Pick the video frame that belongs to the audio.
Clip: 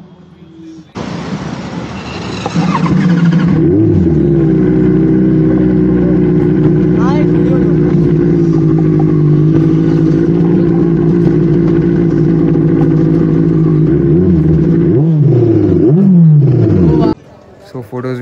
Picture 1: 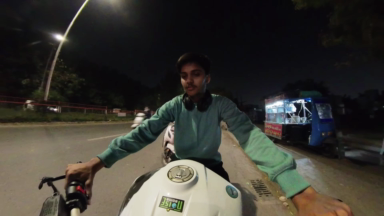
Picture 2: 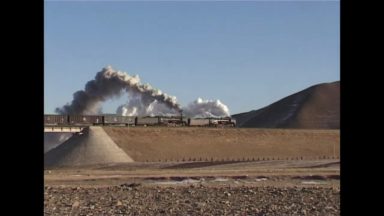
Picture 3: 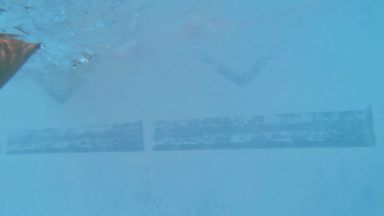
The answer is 1